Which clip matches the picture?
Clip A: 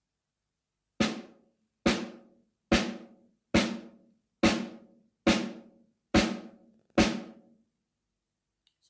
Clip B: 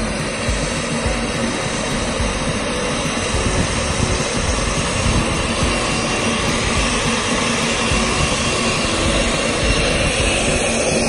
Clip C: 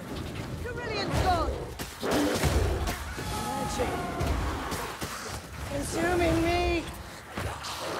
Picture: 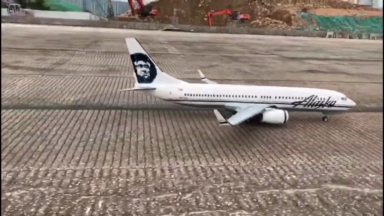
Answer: B